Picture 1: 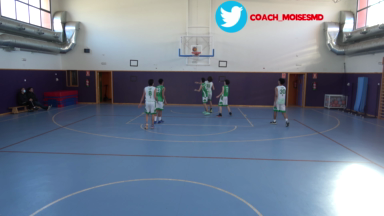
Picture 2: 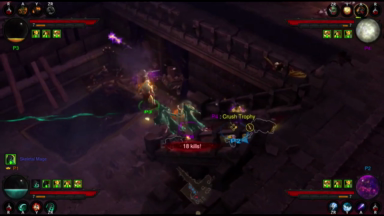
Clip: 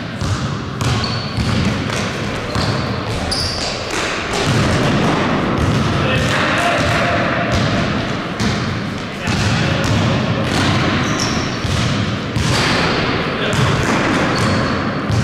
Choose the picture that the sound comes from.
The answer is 1